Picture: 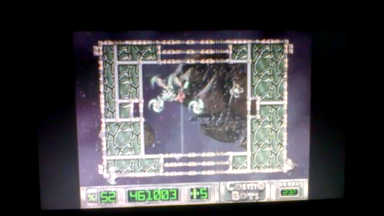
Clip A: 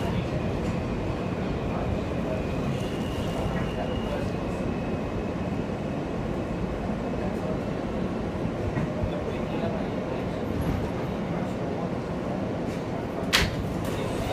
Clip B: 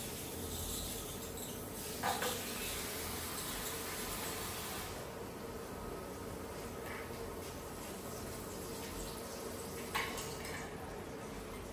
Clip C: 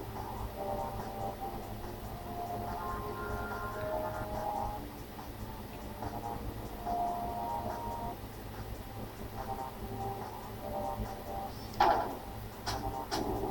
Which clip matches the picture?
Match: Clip C